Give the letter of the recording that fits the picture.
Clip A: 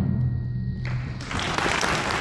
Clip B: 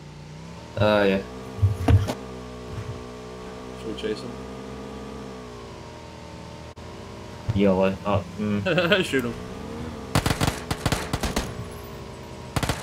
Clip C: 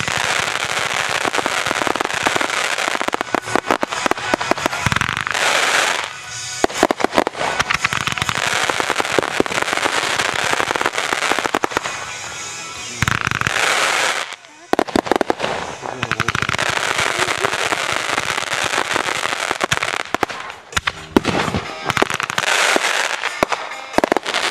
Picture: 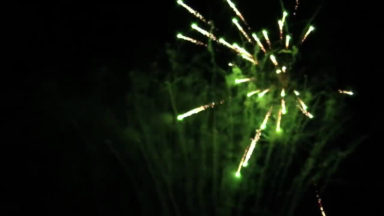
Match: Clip C